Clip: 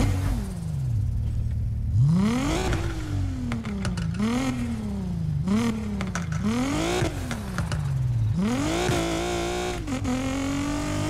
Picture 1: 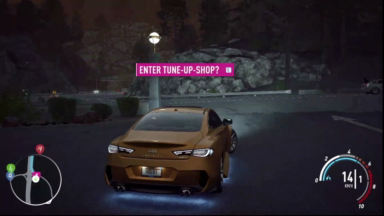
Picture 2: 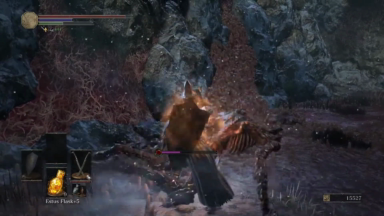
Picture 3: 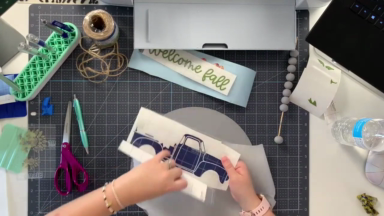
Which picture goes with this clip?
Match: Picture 1